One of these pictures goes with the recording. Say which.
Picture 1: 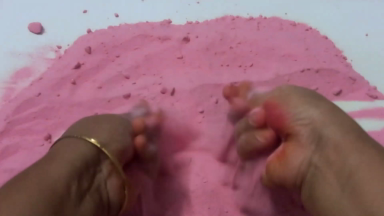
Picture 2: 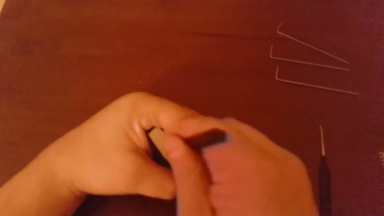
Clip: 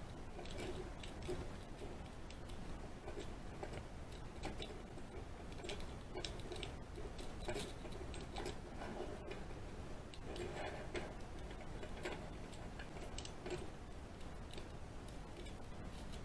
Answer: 2